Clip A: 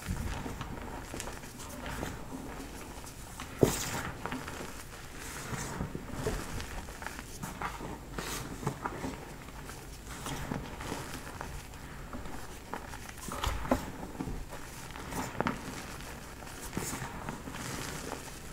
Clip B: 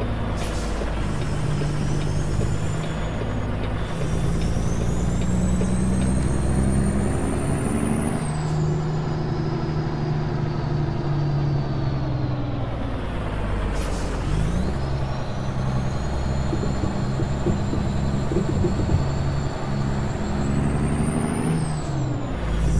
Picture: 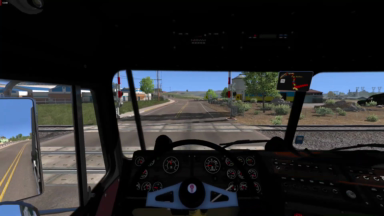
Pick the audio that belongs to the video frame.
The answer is B